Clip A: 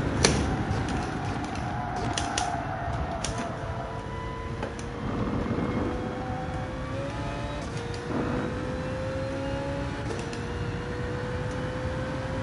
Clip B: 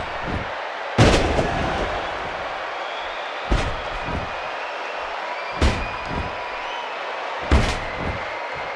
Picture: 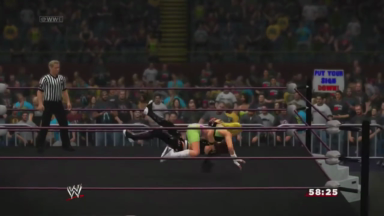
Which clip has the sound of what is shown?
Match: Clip B